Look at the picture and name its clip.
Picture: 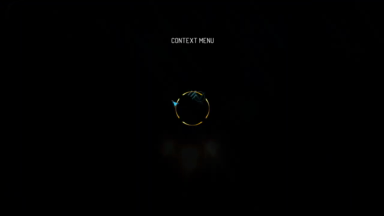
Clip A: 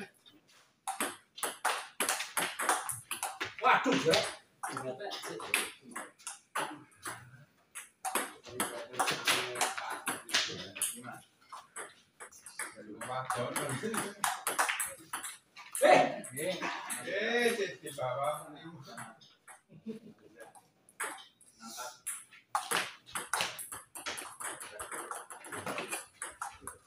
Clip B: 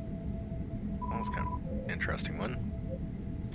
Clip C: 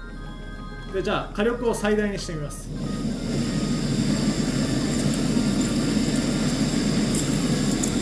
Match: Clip B